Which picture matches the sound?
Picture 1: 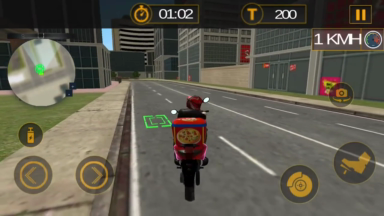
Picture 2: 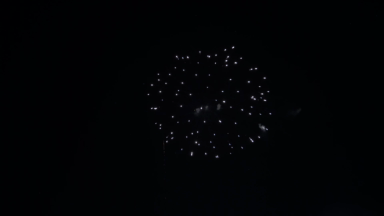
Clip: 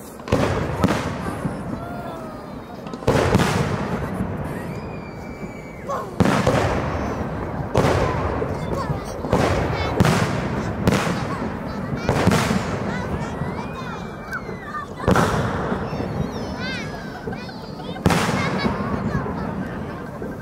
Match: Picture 2